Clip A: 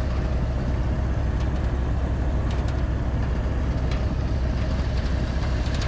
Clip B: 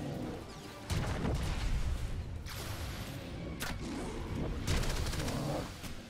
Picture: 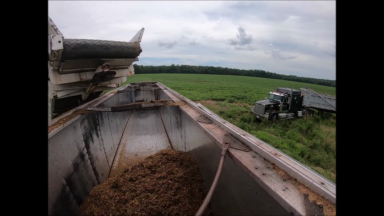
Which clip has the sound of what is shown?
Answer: A